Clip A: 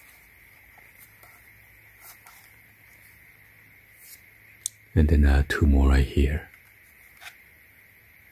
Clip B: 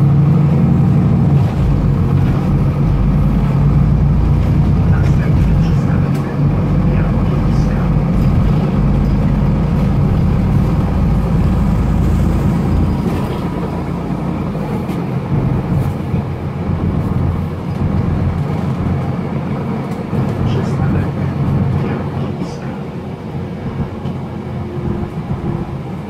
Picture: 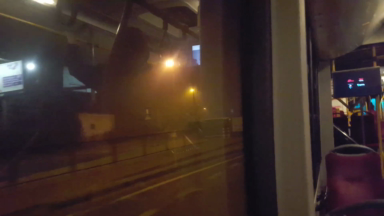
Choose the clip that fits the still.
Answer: B